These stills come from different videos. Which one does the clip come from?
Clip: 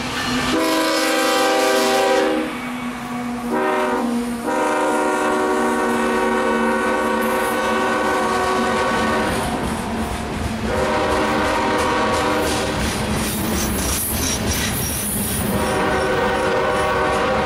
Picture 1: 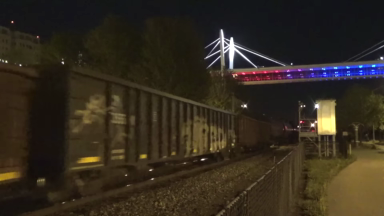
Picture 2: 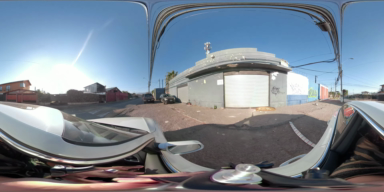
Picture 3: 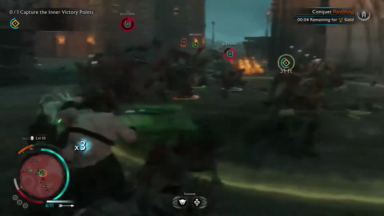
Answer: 1